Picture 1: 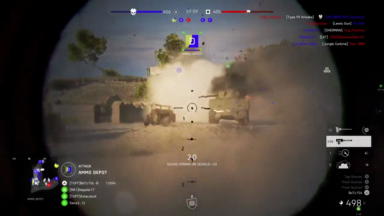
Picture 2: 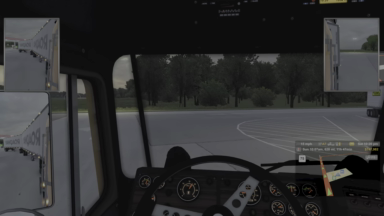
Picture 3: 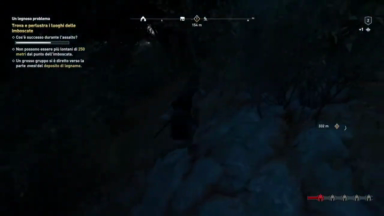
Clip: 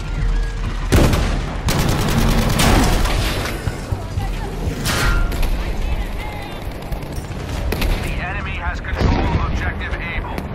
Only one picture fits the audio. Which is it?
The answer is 1